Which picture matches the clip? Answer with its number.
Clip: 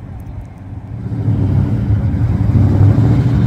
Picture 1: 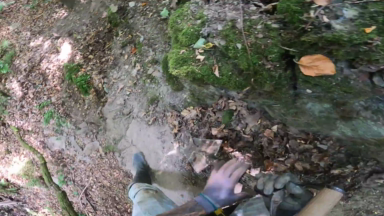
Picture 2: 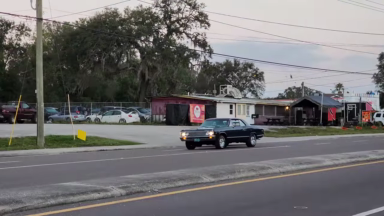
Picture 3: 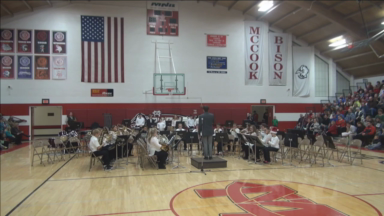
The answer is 2